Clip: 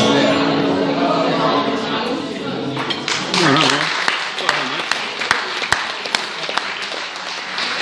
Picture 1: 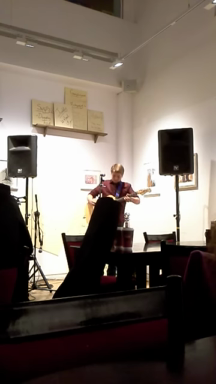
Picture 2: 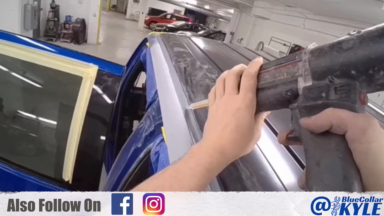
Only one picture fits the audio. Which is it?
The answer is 1